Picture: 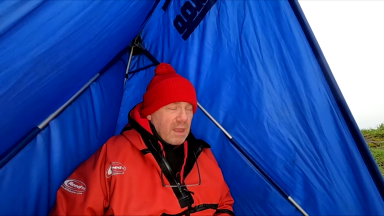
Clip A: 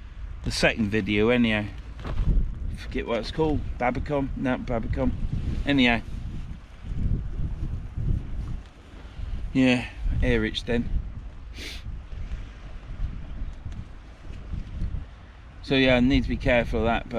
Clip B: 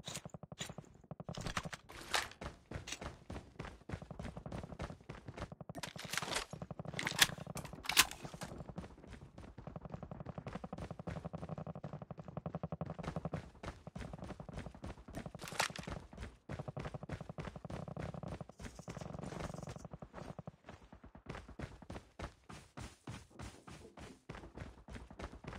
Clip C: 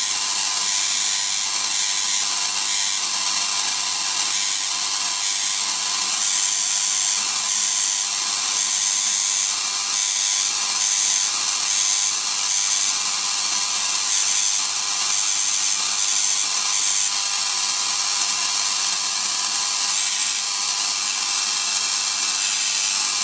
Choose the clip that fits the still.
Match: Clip A